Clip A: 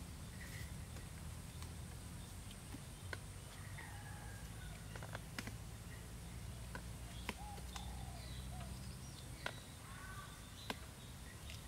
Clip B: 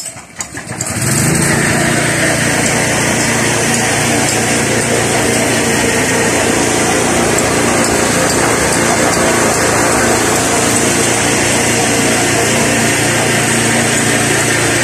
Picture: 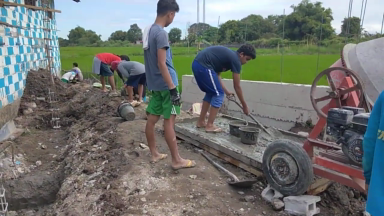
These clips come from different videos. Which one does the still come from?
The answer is B